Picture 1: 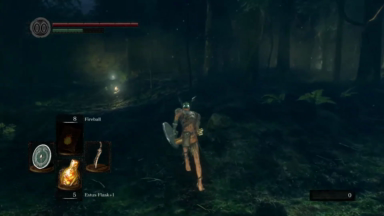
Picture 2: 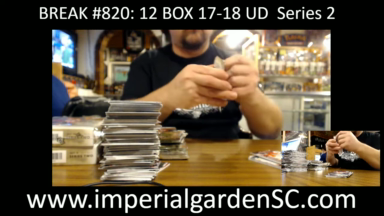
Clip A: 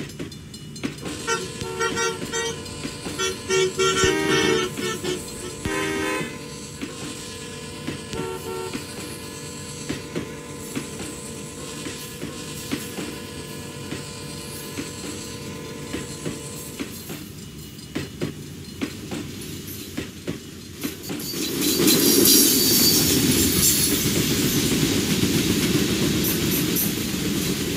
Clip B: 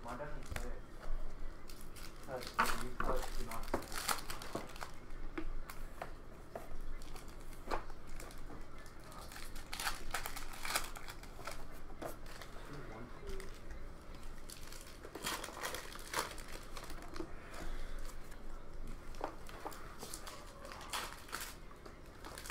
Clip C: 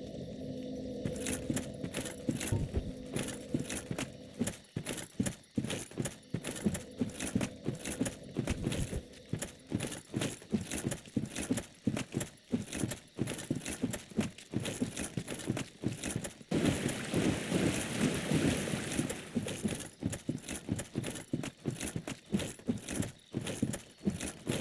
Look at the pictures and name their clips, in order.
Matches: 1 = C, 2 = B